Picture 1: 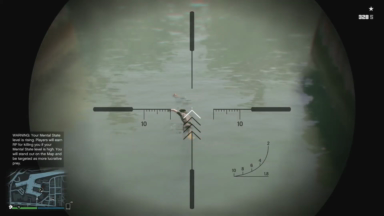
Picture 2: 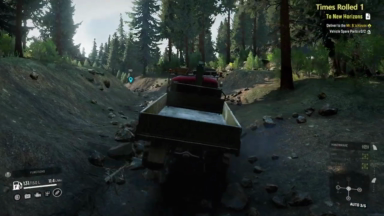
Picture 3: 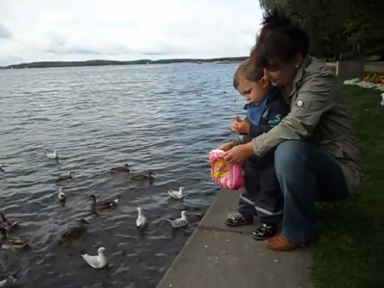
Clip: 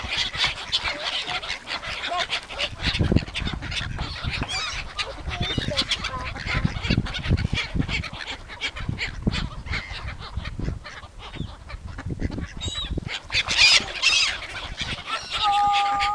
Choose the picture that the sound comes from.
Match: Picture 3